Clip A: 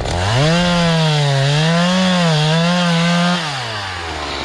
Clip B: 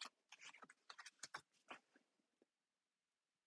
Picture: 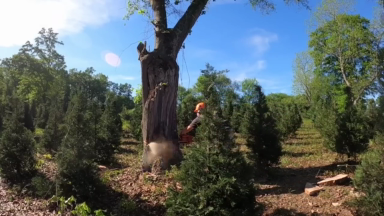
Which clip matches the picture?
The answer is A